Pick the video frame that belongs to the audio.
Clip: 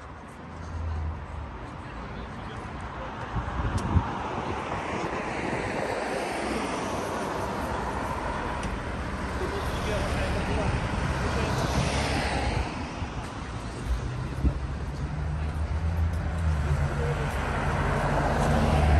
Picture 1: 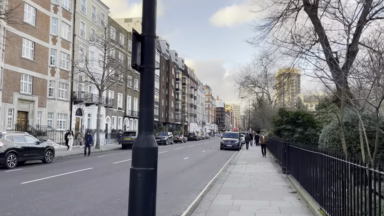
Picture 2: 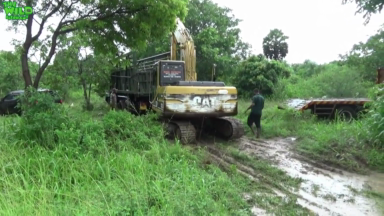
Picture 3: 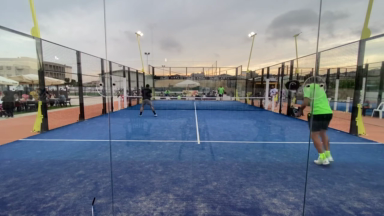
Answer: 1